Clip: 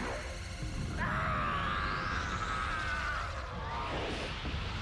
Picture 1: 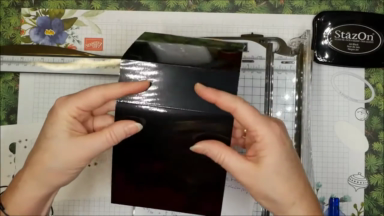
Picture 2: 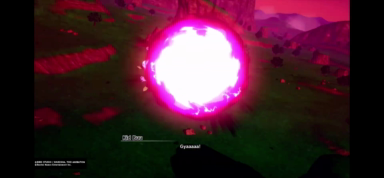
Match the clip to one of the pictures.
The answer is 2